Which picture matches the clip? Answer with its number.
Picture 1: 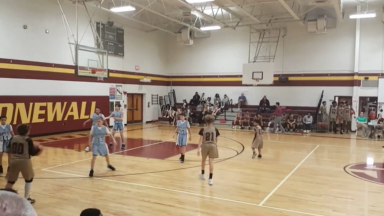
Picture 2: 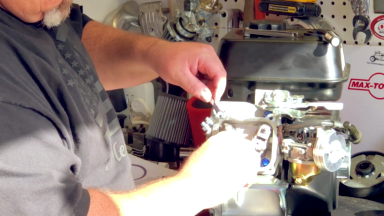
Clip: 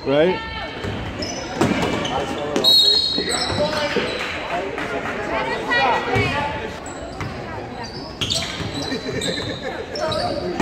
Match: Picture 1